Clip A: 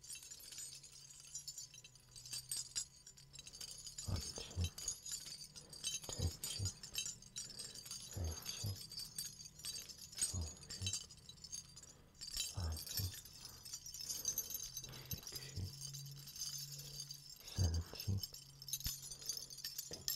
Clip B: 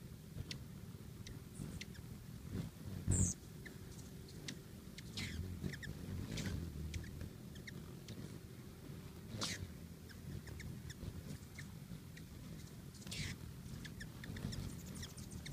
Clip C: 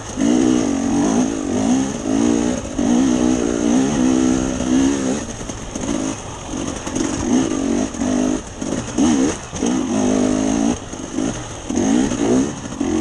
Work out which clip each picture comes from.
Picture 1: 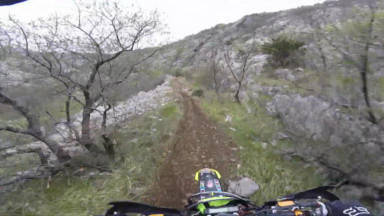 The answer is C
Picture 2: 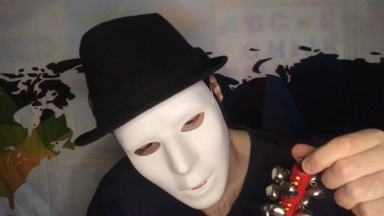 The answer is A